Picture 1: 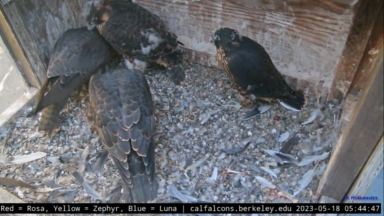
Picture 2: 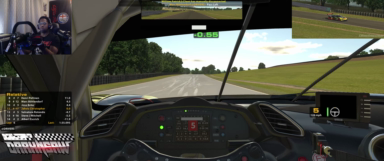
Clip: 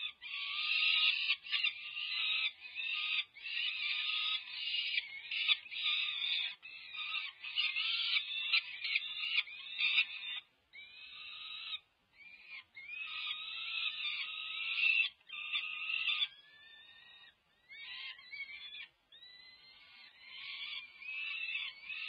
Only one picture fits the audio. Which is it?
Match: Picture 1